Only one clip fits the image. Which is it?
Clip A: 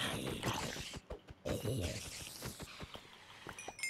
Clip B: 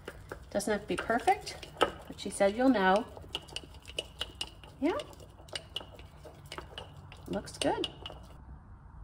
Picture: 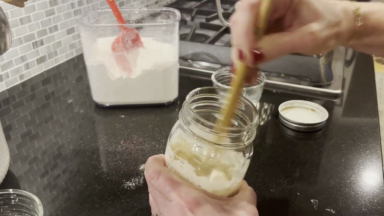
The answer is B